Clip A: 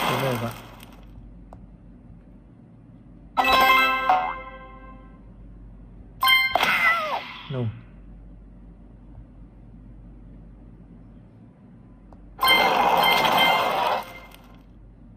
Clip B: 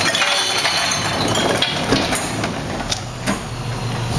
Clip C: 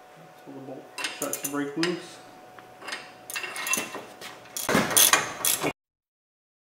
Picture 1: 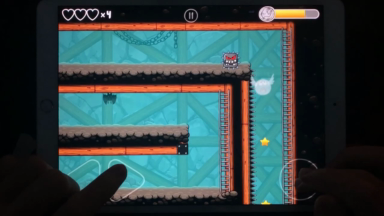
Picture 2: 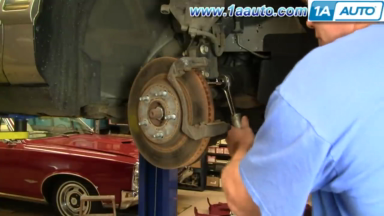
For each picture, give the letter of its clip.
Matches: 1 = A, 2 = C